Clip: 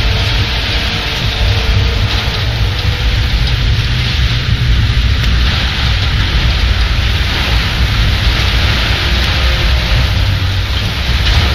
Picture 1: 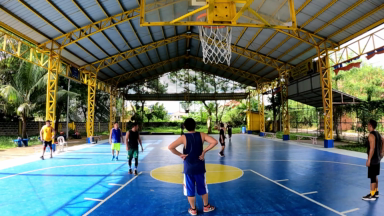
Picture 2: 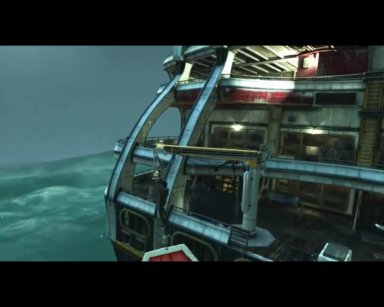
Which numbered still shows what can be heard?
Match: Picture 2